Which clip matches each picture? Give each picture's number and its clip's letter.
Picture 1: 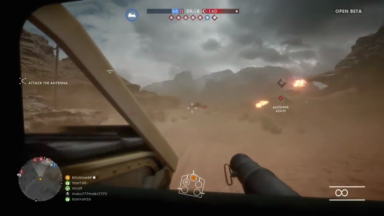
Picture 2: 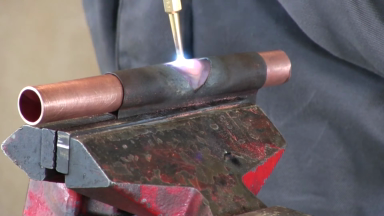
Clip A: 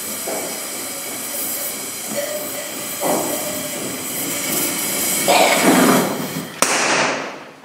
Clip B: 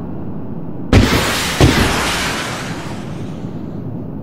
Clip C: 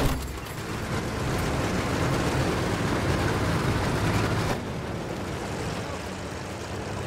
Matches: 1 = C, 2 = A